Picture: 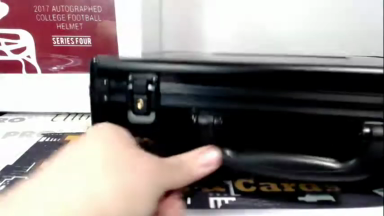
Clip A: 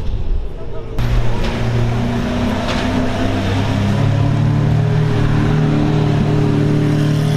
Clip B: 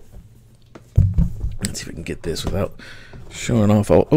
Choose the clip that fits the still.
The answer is B